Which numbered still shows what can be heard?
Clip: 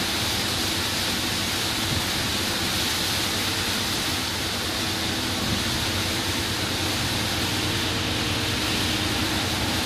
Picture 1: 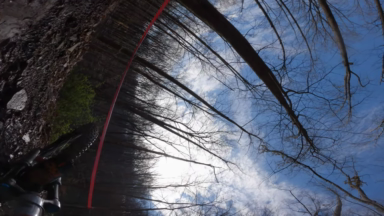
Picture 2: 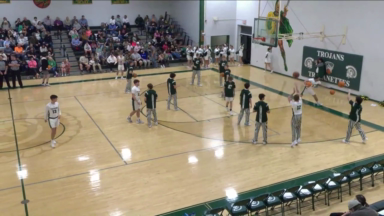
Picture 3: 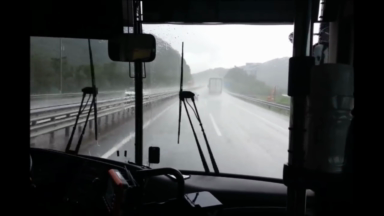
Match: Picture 3